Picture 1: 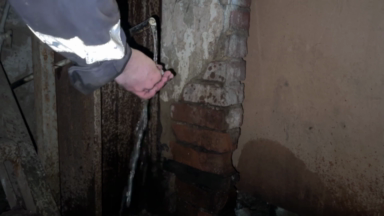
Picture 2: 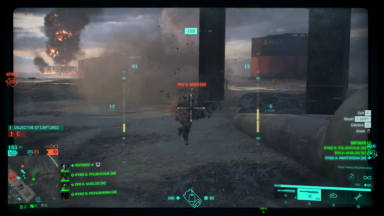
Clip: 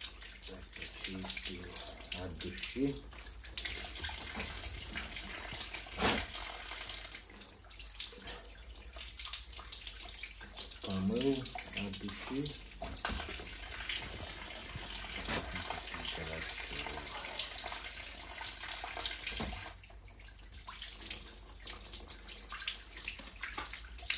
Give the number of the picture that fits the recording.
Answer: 1